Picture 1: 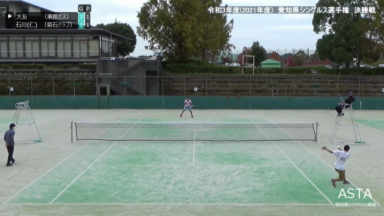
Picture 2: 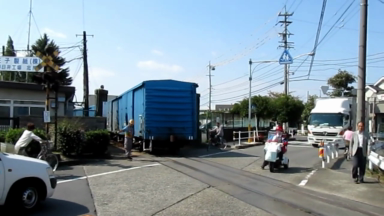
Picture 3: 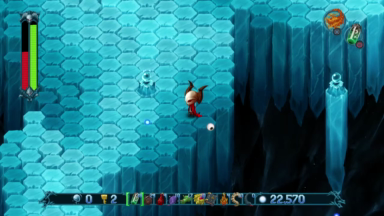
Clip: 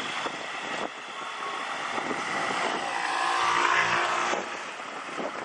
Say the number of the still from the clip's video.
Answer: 2